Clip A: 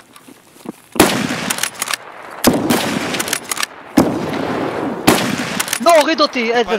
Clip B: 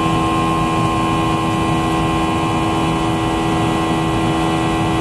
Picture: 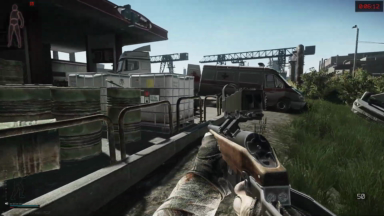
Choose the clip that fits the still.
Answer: A